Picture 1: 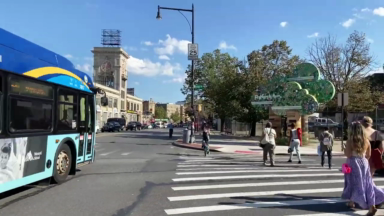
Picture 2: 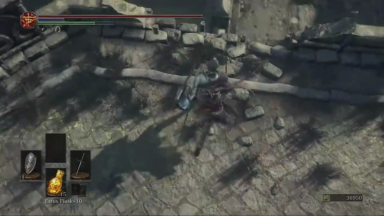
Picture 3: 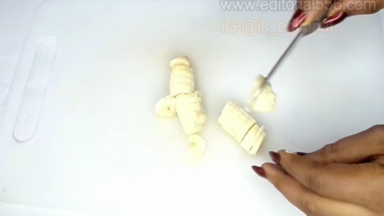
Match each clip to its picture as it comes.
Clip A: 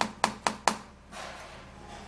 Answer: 3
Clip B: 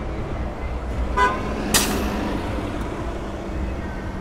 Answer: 1